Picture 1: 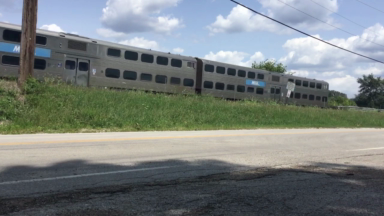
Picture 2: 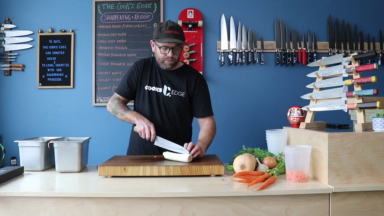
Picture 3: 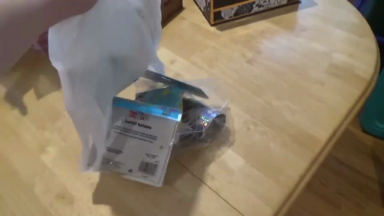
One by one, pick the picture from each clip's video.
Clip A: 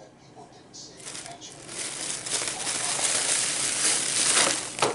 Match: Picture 3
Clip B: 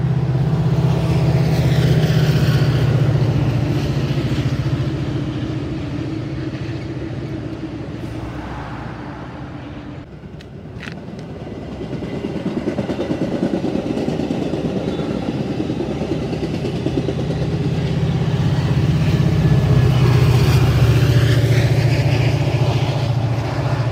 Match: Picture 1